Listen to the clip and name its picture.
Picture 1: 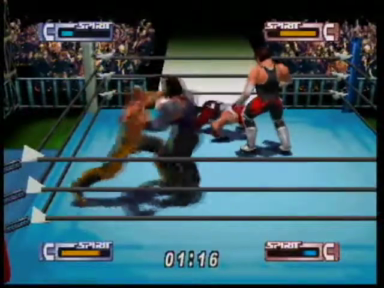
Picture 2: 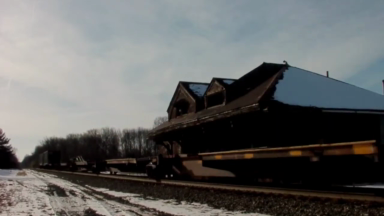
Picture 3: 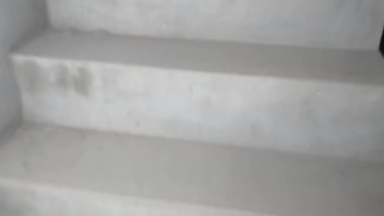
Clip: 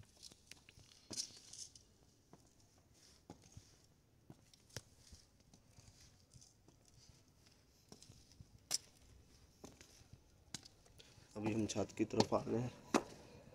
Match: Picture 3